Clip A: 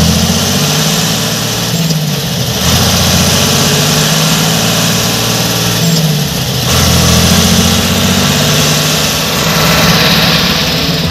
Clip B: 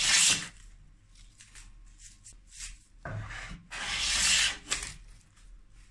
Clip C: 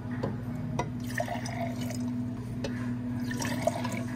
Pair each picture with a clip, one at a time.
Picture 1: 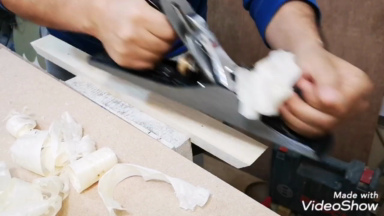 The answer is B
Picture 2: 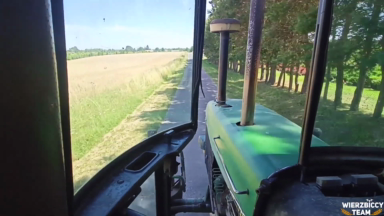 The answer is A